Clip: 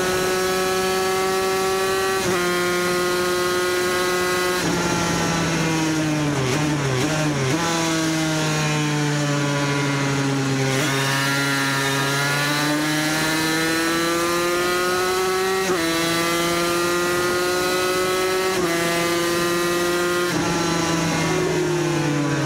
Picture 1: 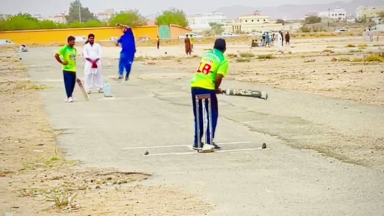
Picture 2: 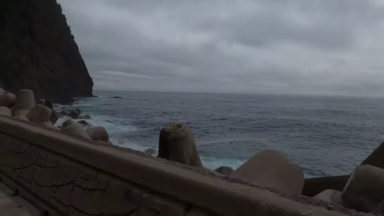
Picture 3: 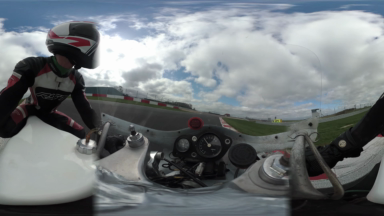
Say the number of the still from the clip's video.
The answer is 3